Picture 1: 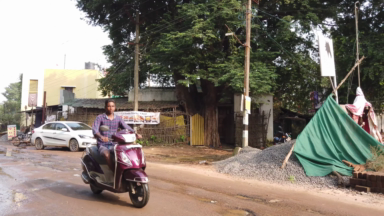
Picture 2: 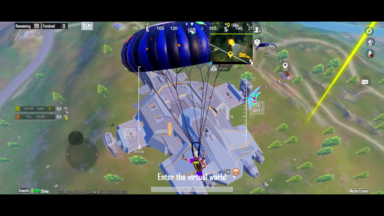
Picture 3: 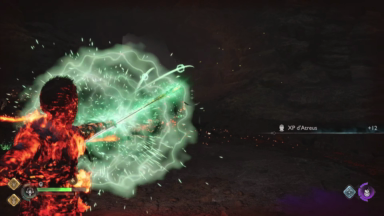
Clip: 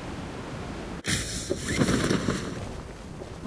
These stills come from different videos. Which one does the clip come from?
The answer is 2